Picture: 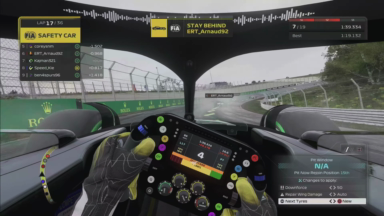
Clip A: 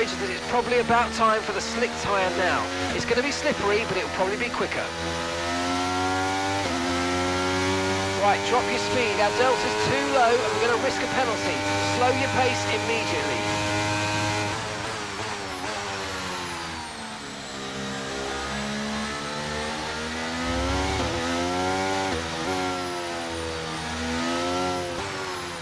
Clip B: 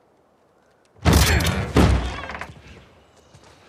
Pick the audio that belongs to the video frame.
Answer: A